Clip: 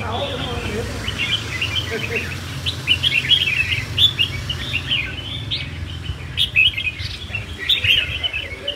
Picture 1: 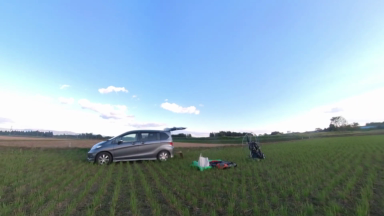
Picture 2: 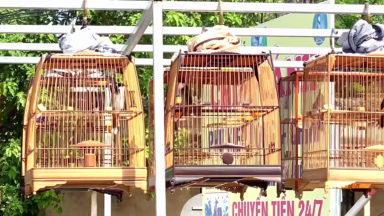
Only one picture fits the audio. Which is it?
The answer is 2